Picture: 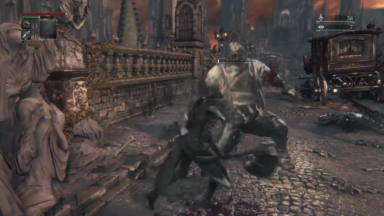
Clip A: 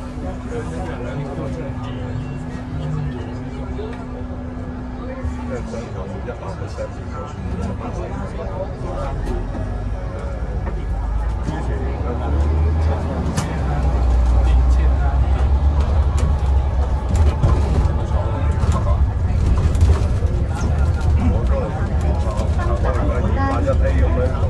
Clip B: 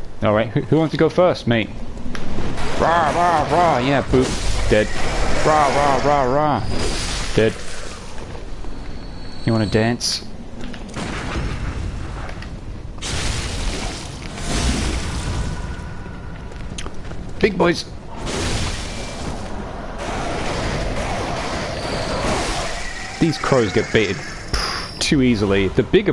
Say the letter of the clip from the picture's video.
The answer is B